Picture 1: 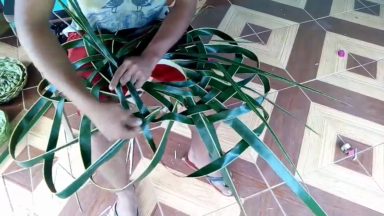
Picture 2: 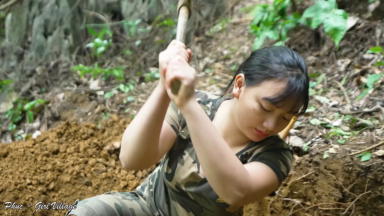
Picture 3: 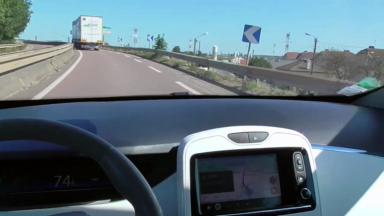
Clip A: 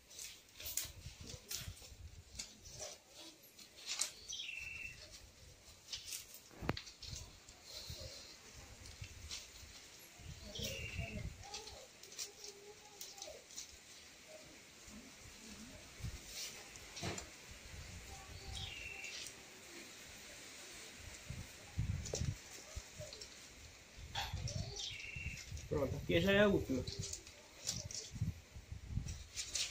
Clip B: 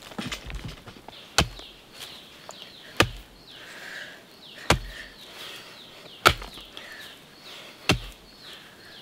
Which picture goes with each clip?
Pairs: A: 1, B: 2